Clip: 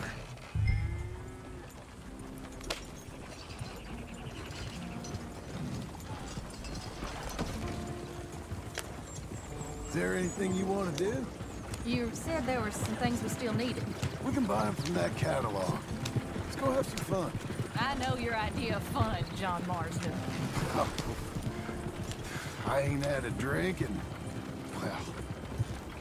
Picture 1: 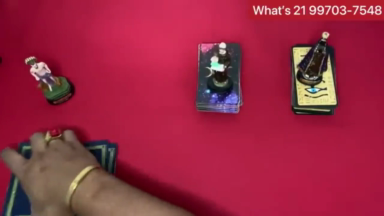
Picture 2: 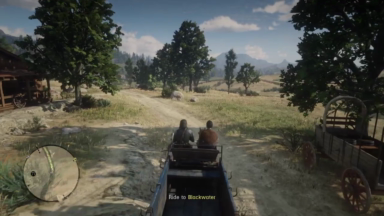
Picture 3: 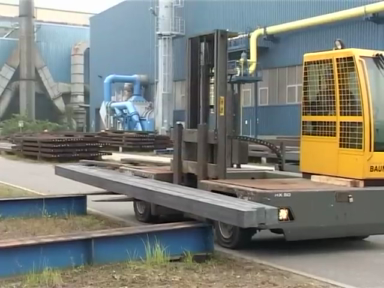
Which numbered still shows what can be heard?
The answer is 2